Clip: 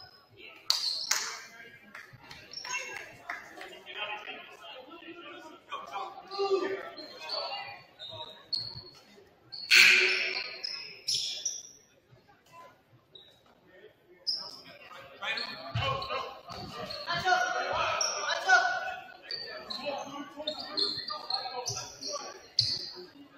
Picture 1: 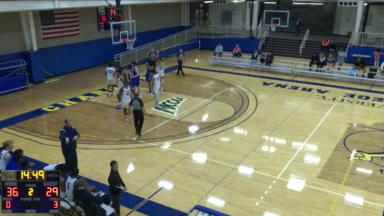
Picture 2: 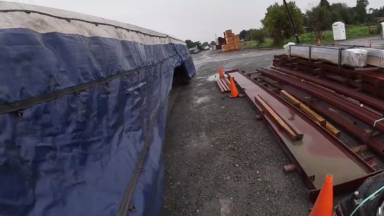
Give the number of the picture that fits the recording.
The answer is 1